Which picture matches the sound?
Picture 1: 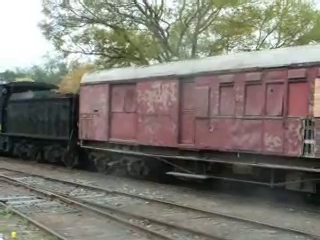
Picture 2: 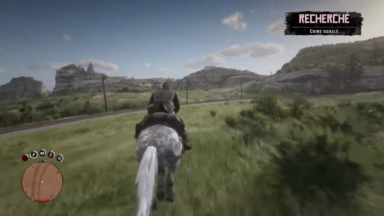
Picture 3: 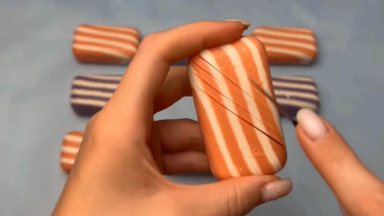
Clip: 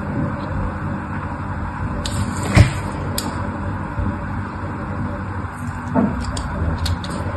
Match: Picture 3